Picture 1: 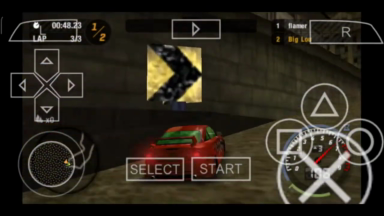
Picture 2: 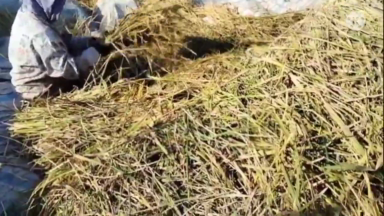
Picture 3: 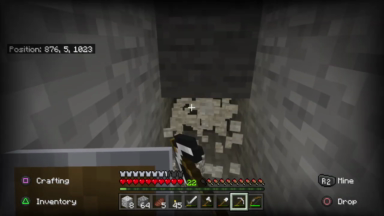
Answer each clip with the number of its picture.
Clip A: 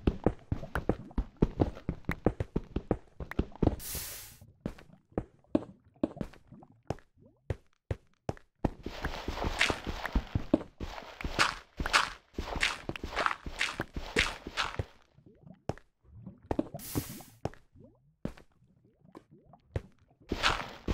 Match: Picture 3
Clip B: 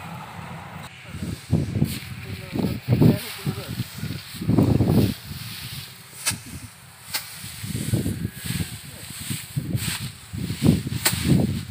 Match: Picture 2